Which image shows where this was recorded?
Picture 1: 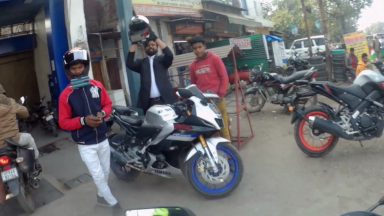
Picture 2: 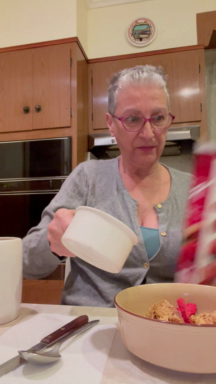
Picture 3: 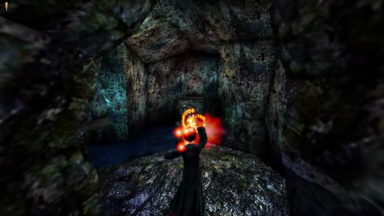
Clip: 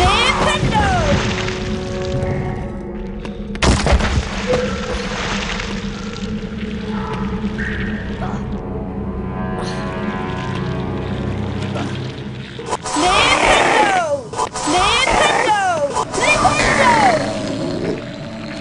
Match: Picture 3